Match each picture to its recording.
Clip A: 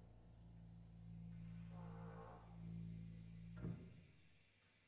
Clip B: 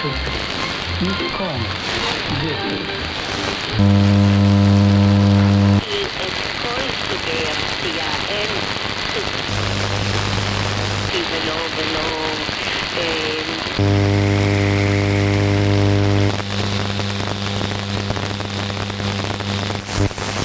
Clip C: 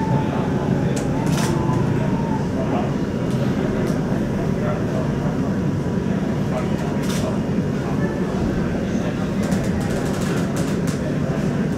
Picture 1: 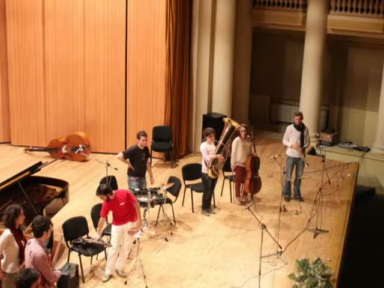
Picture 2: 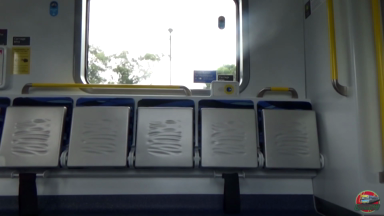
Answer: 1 A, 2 C